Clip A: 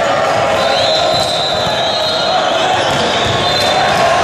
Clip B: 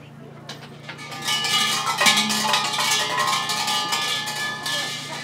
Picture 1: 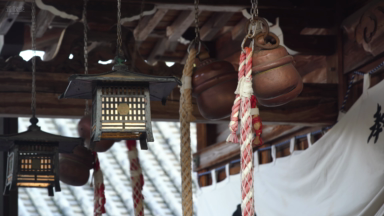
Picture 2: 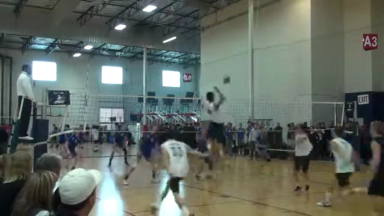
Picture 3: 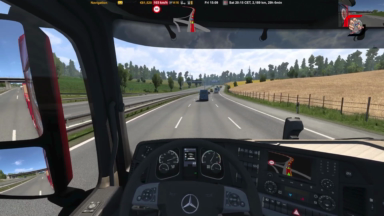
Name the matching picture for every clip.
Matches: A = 2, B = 1